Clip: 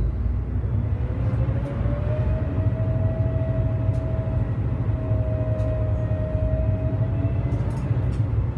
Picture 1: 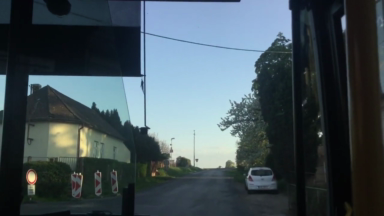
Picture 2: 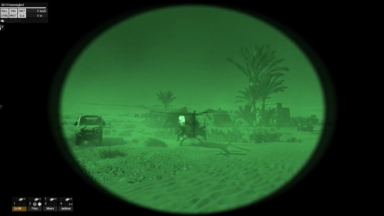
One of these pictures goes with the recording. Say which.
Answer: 1